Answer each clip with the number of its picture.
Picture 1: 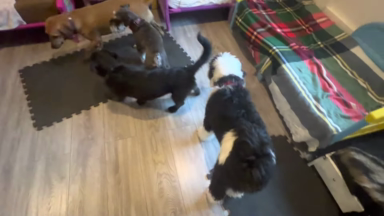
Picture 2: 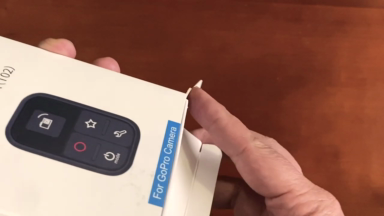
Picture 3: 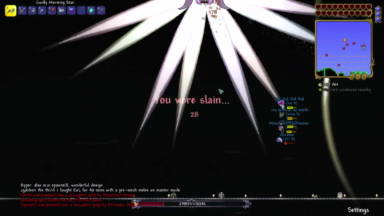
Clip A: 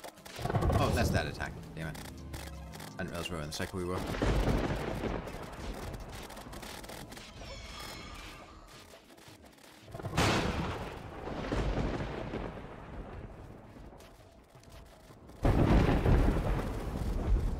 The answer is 3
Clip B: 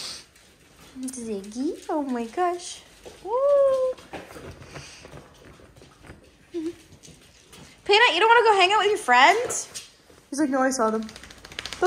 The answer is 1